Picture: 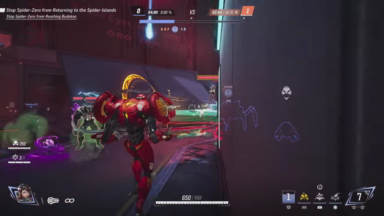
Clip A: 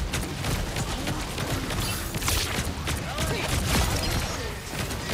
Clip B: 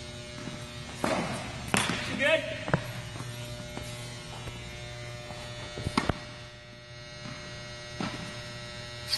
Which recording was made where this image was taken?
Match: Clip A